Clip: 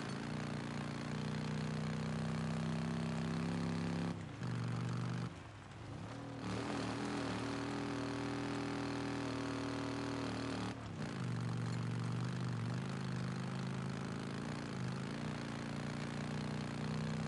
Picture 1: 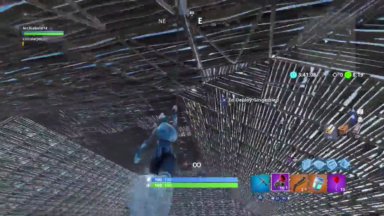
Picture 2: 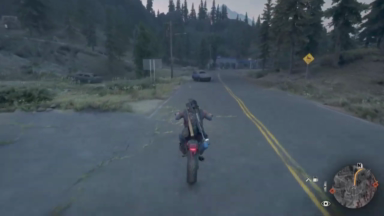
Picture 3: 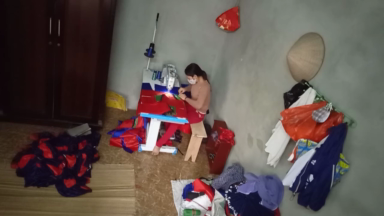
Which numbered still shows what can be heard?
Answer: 2